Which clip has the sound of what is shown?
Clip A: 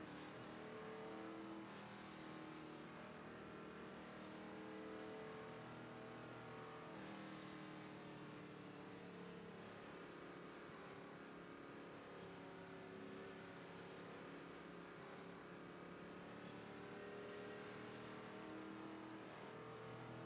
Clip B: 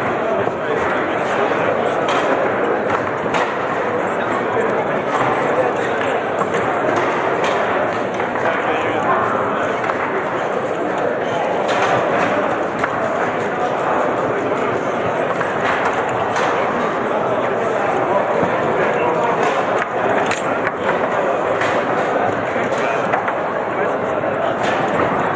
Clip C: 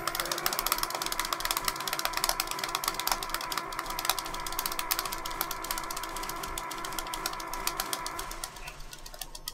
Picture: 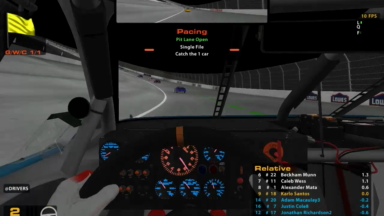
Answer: A